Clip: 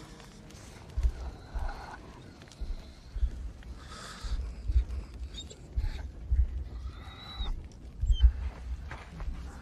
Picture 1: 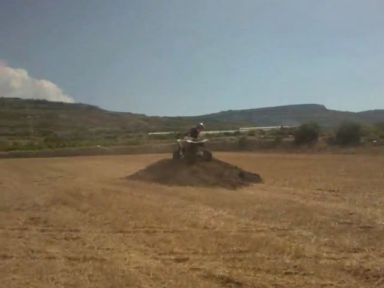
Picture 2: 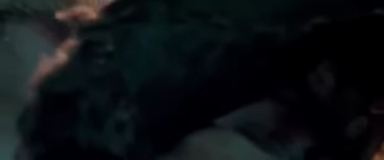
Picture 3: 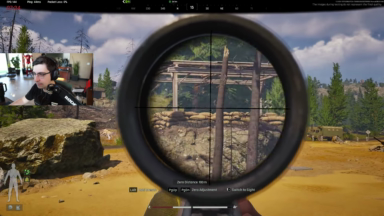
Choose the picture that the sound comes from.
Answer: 2